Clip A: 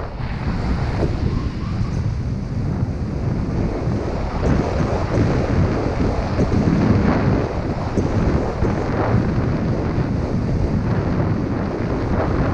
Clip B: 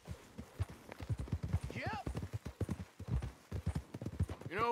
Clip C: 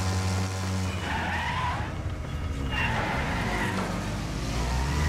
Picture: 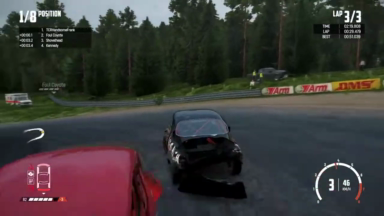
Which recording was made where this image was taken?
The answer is C